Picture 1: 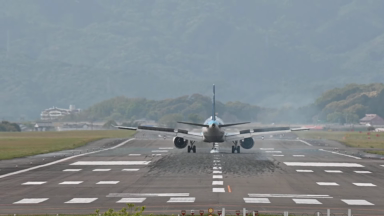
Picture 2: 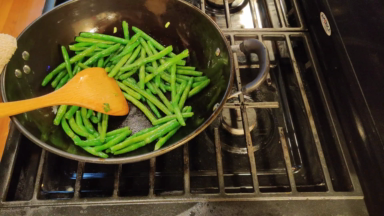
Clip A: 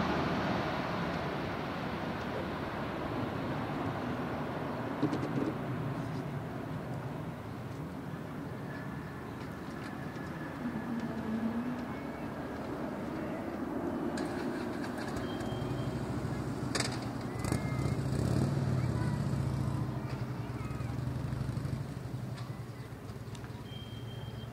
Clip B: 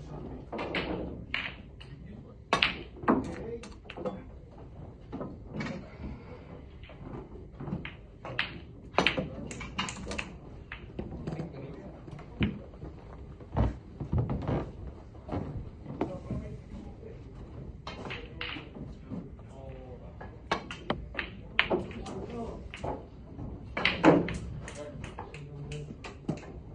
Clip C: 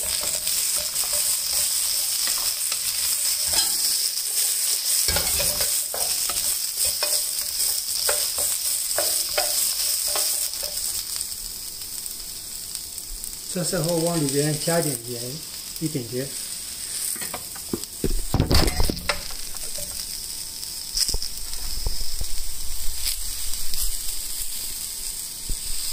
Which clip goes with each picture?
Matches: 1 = A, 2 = C